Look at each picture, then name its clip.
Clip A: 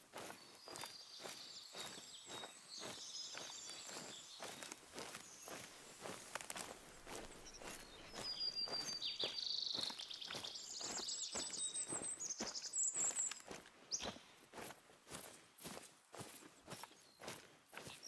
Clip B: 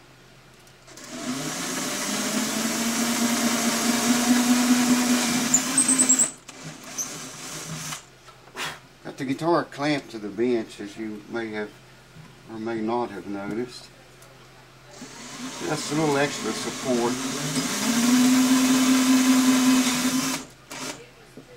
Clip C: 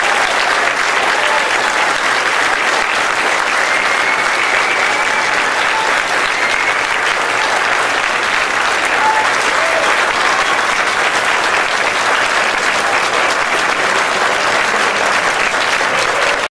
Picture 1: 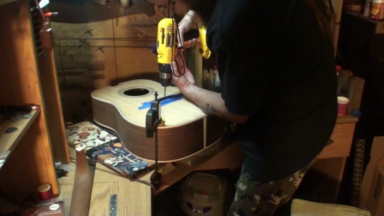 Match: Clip B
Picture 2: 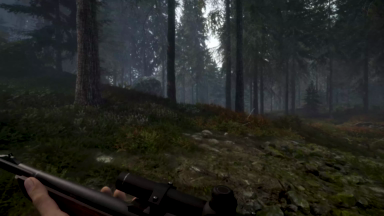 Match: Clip A